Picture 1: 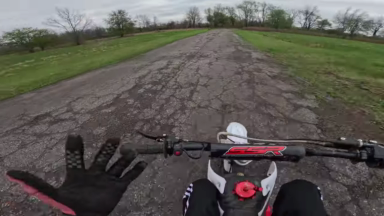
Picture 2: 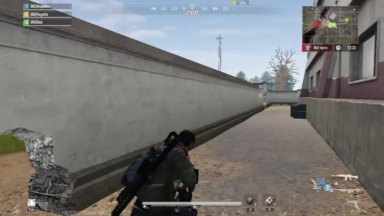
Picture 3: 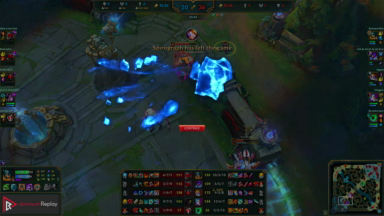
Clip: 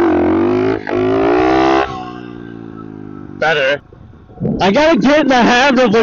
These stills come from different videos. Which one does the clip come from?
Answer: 1